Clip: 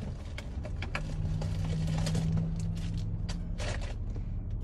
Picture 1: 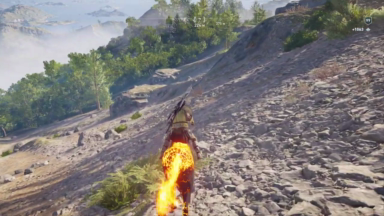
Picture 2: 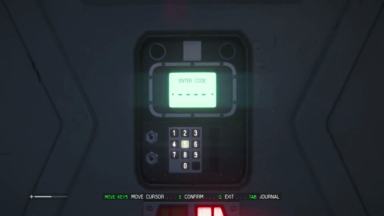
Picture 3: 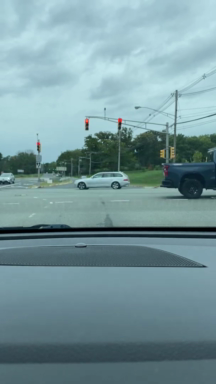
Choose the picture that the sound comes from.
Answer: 3